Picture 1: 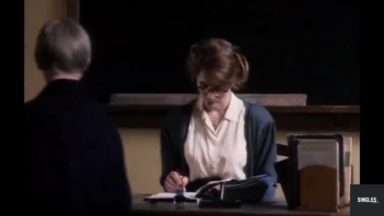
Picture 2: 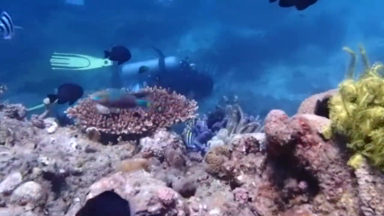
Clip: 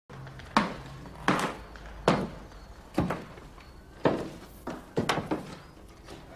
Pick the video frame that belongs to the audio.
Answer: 1